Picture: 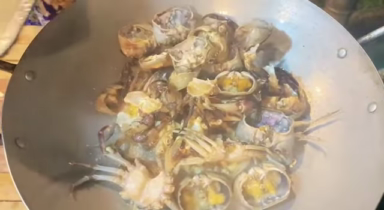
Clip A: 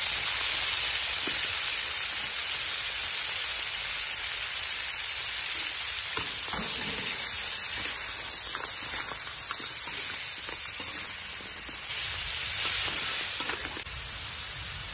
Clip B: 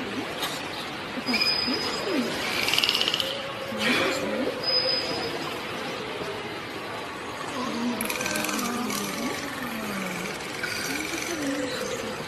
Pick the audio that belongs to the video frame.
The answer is A